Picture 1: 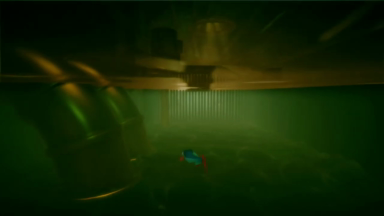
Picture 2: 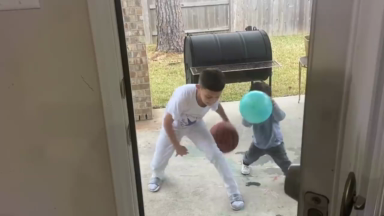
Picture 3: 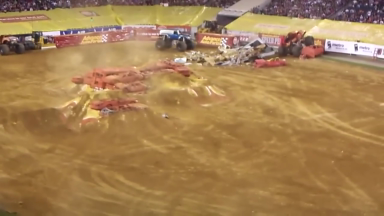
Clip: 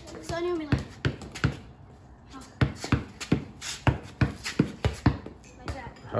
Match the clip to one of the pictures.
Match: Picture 2